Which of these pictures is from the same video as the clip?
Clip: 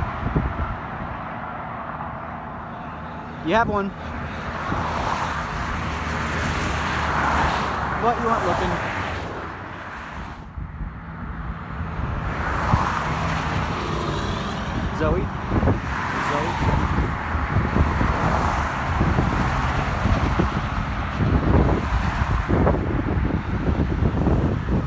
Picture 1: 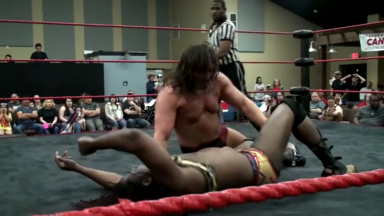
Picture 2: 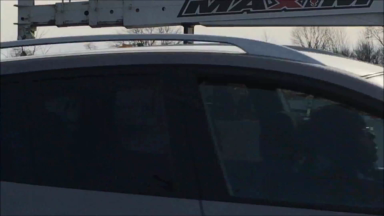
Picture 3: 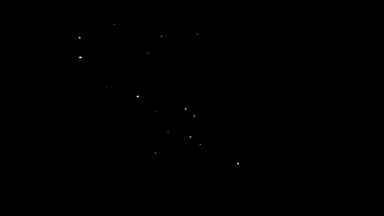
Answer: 2